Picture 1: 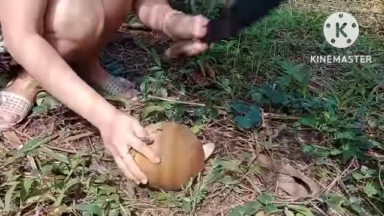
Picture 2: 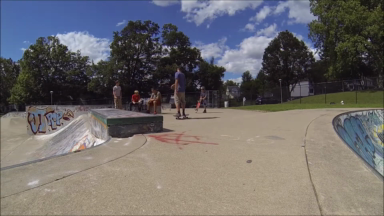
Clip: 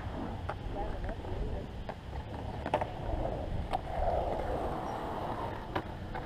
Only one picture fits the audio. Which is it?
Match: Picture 2